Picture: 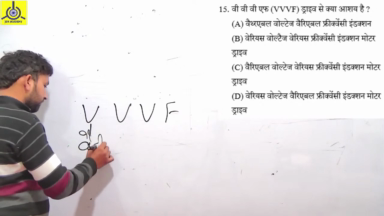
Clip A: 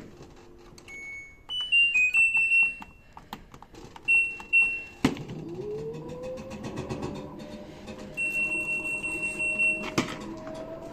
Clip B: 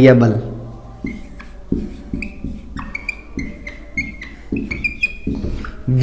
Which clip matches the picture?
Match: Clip B